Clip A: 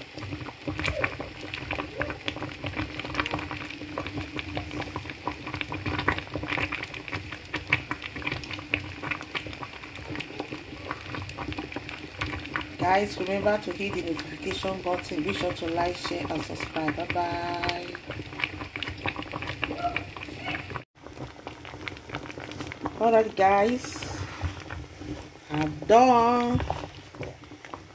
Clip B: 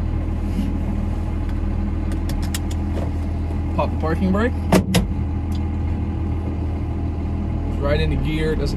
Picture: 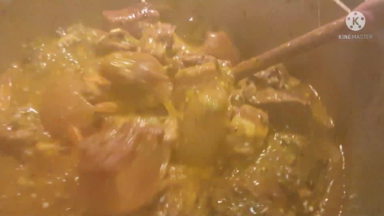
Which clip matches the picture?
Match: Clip A